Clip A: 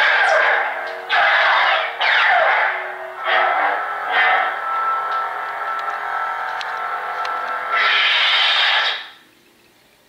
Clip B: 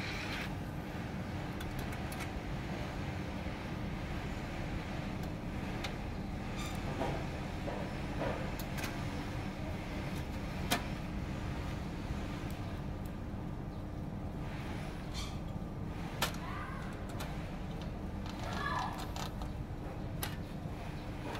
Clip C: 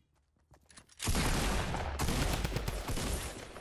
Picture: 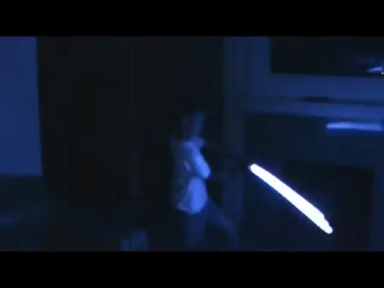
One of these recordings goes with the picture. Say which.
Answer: A